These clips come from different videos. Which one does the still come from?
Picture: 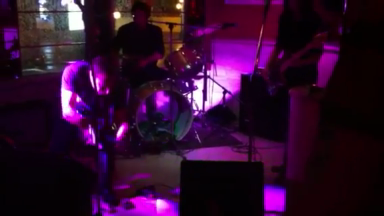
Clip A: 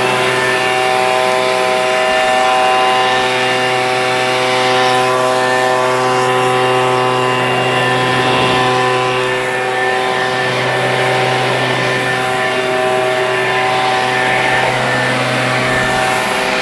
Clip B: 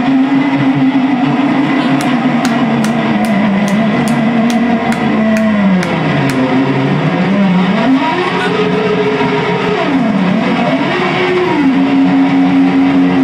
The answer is B